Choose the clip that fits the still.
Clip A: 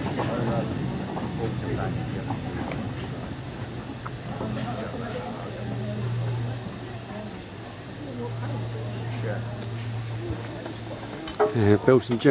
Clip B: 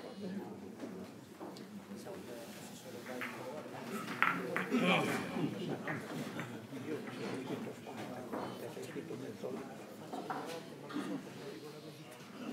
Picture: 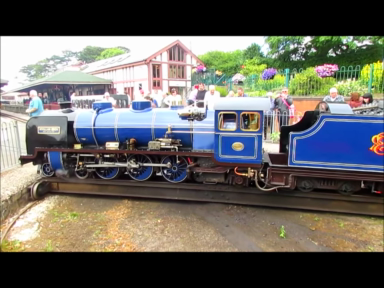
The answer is A